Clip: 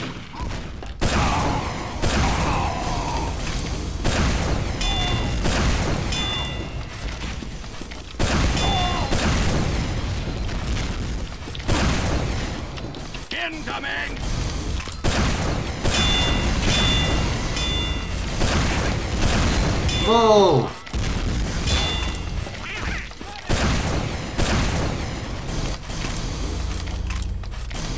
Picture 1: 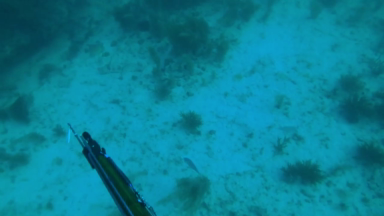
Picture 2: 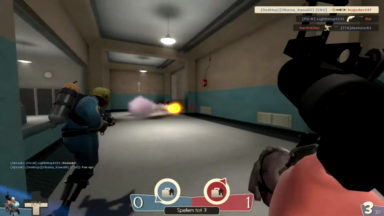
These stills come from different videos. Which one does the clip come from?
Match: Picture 2